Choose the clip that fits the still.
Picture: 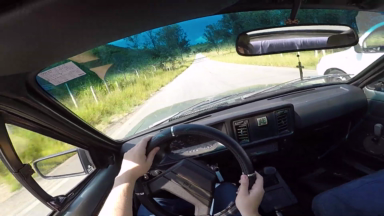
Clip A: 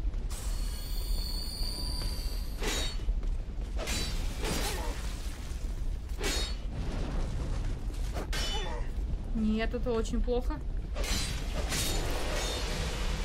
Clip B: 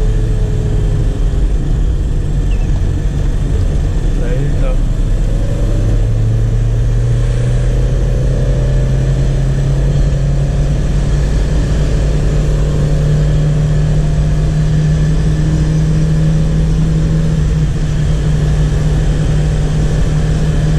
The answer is B